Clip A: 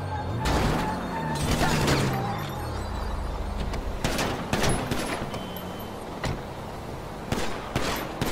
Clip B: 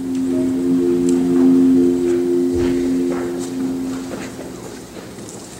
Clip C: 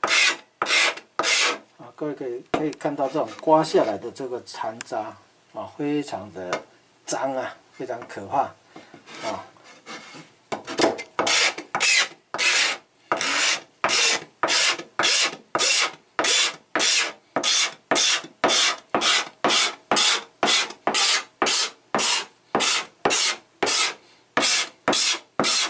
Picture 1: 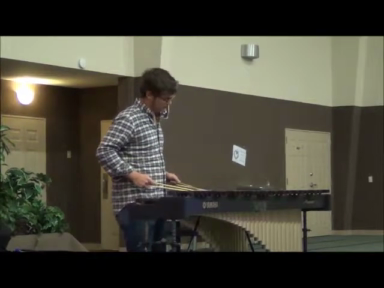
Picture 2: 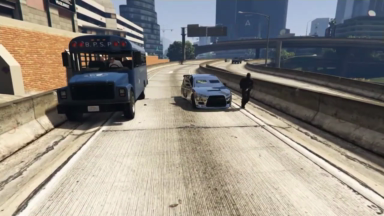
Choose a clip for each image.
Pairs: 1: B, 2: A